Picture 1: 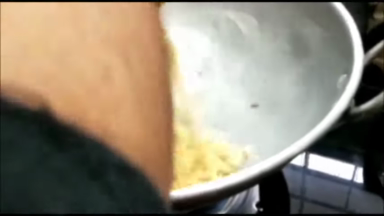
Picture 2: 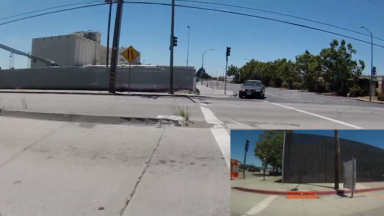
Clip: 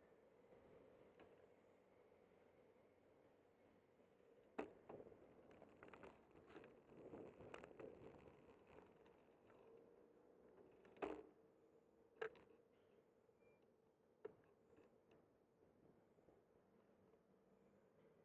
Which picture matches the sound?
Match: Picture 2